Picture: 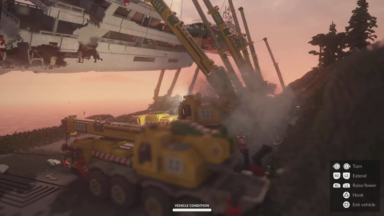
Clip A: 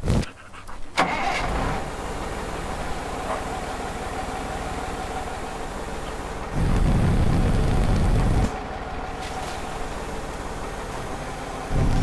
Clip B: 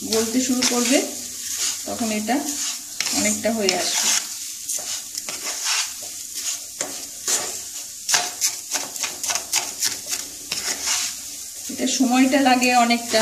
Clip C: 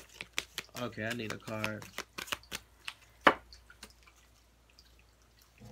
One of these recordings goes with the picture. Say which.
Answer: A